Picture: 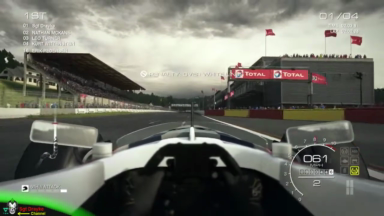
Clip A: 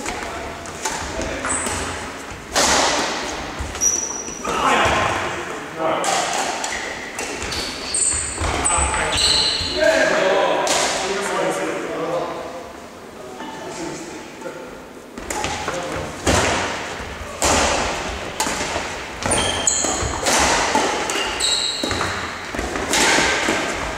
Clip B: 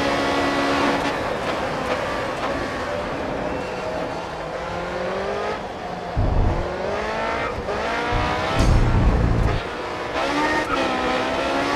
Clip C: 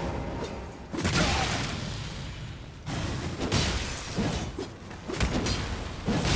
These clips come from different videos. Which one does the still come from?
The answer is B